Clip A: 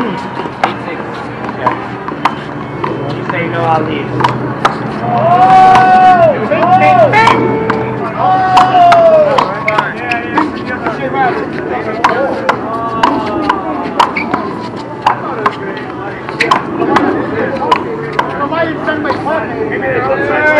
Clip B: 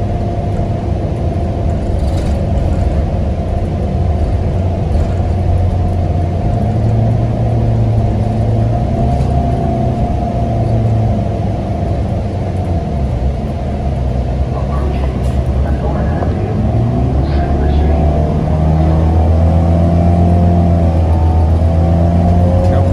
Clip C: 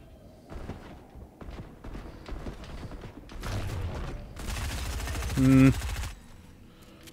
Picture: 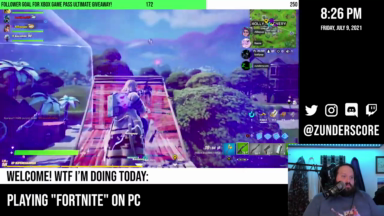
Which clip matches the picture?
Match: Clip C